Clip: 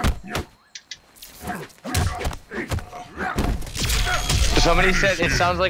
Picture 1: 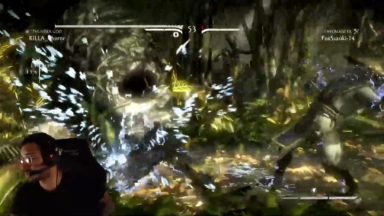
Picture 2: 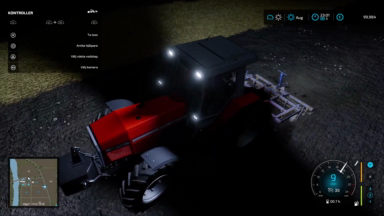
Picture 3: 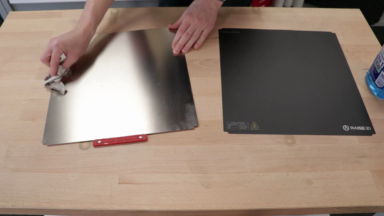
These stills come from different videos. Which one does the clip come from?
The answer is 1